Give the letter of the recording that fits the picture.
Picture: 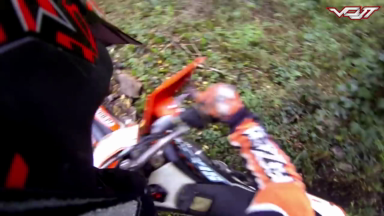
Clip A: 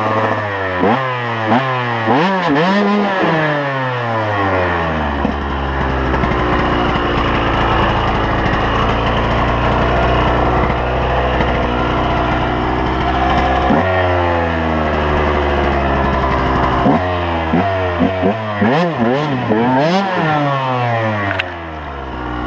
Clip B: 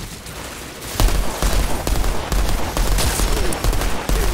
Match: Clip A